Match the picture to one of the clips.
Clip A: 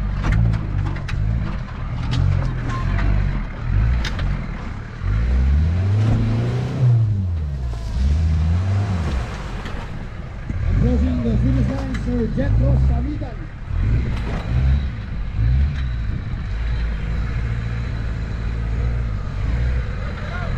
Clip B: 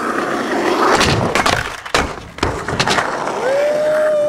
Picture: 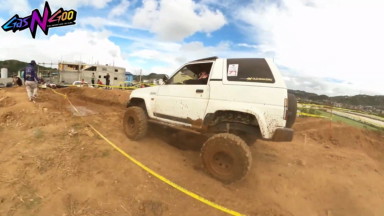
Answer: A